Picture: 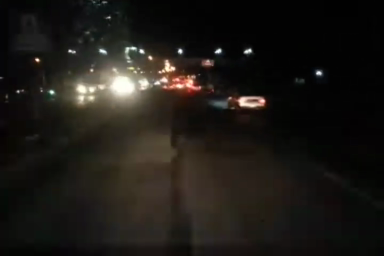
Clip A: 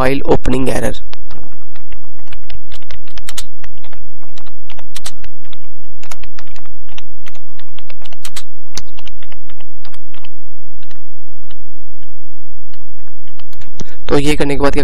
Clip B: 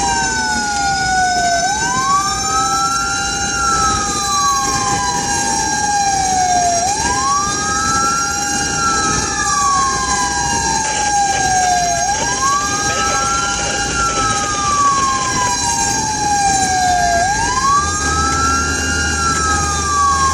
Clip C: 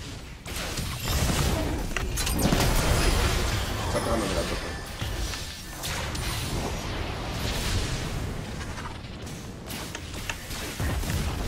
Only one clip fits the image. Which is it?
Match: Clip B